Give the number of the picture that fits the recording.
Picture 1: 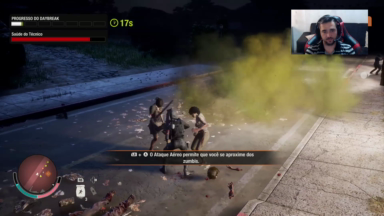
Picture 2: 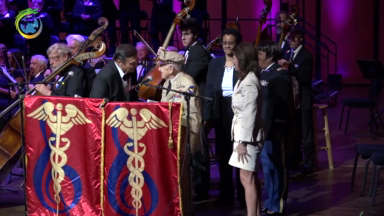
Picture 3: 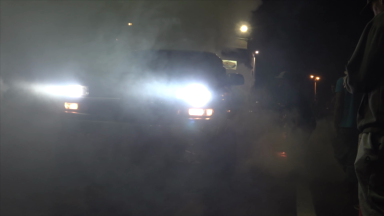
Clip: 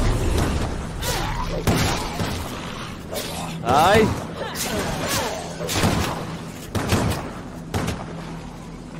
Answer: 1